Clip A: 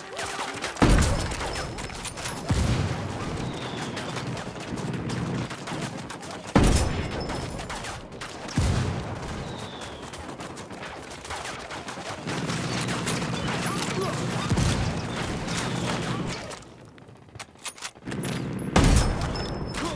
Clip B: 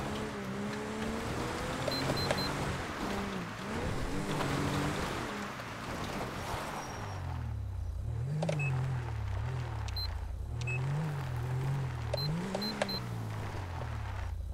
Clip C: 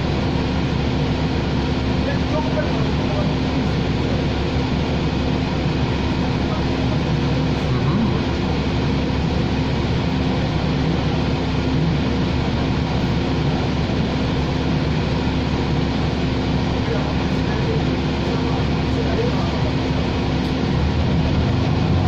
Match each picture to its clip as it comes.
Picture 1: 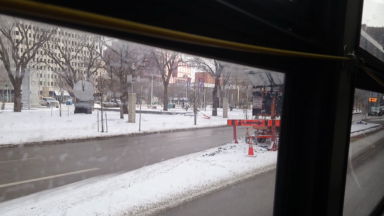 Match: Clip C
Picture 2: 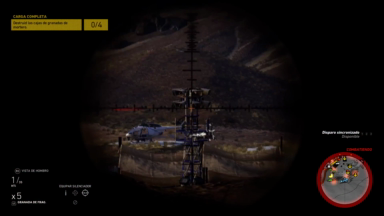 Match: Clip A